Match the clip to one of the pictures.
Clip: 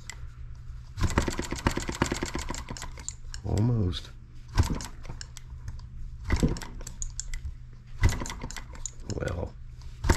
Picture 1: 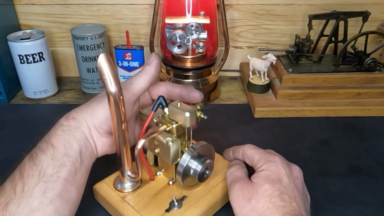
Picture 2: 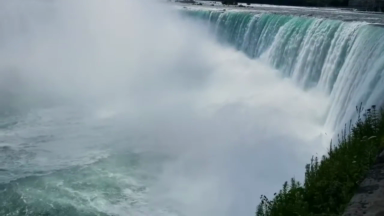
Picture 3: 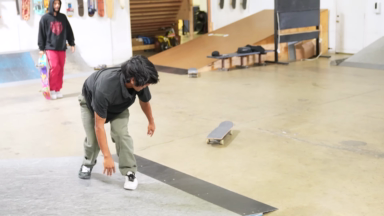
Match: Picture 1